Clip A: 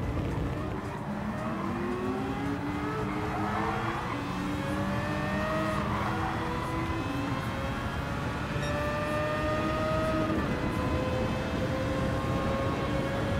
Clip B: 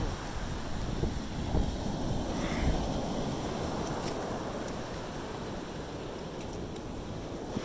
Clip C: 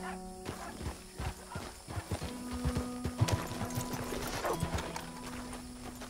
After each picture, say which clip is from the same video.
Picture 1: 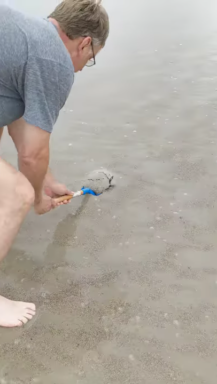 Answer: B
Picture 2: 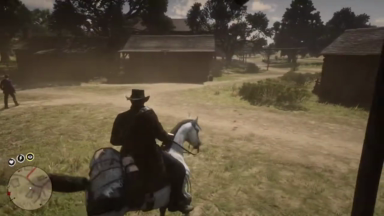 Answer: C